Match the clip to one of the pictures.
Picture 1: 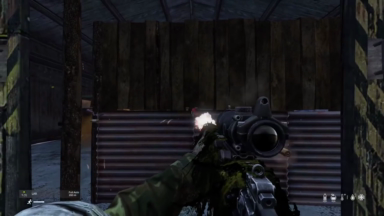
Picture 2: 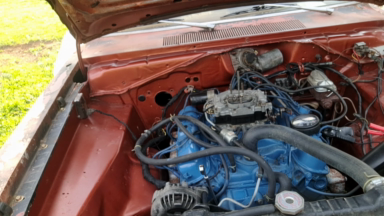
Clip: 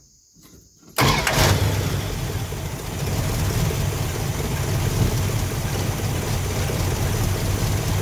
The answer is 2